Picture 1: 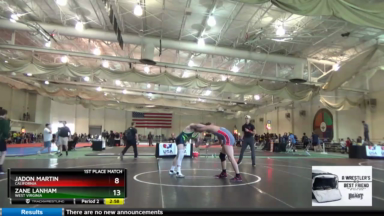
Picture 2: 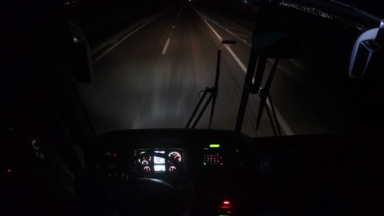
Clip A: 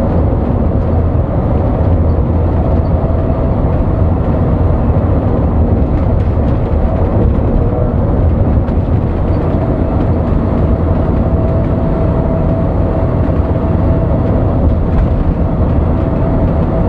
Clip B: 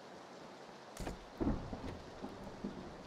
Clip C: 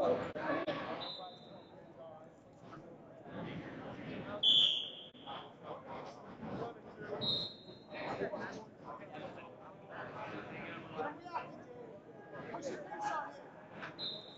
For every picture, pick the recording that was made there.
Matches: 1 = C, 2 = A